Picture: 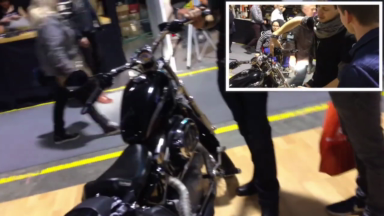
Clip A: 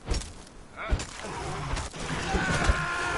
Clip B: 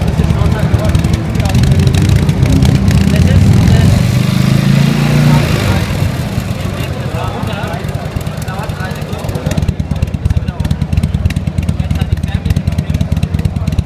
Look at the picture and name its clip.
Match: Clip B